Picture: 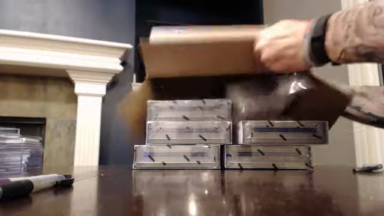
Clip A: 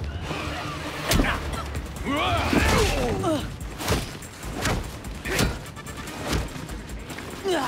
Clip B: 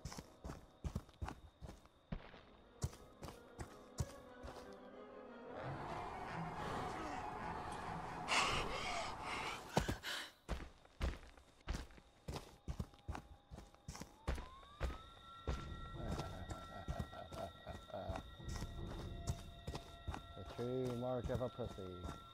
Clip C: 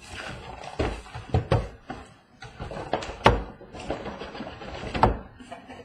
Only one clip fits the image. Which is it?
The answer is C